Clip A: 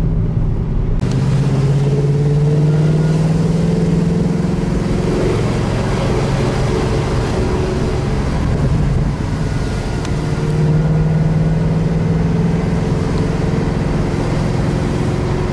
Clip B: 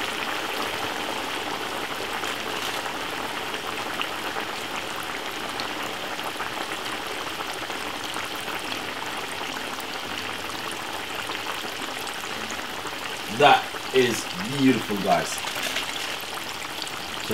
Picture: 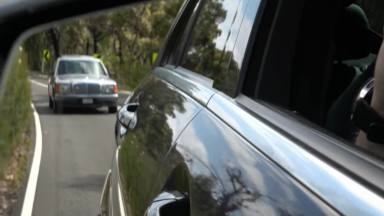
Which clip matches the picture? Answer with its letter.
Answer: A